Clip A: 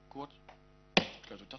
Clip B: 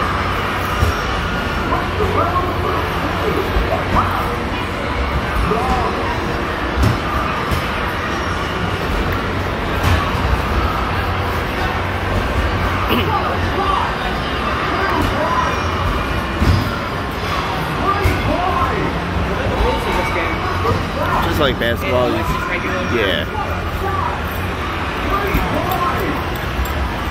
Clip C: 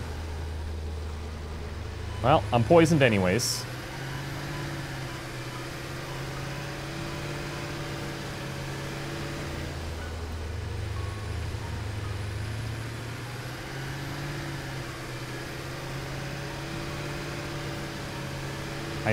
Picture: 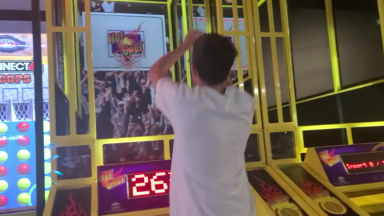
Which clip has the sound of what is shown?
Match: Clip B